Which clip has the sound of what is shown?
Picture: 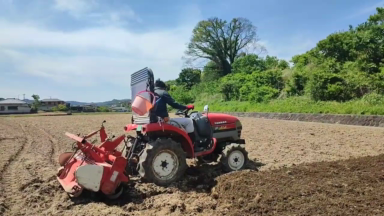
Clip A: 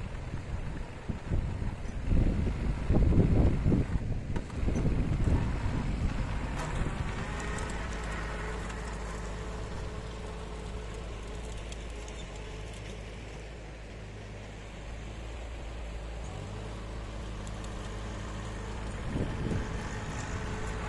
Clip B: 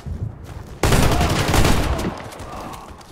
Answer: A